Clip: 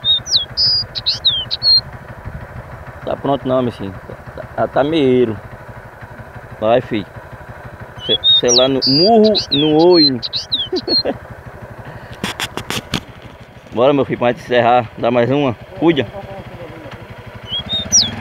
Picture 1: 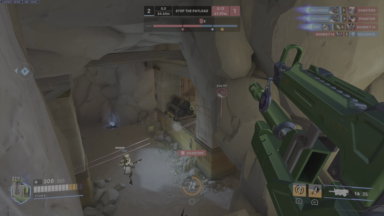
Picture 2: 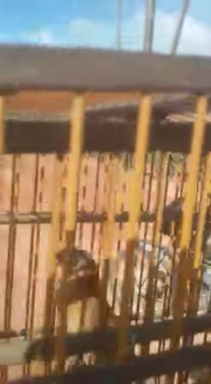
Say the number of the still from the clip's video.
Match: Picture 2